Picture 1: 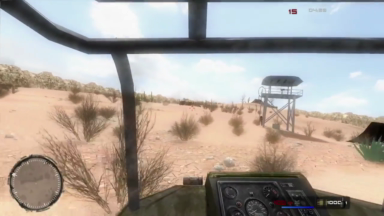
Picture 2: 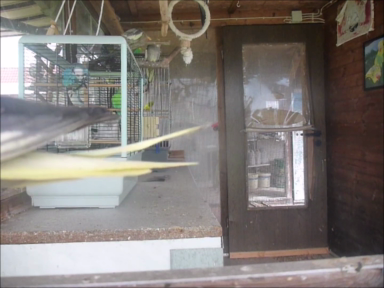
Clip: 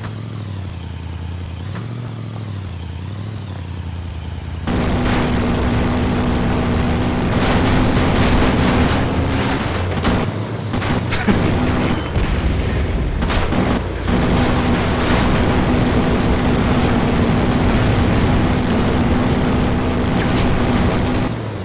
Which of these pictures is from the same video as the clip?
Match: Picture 1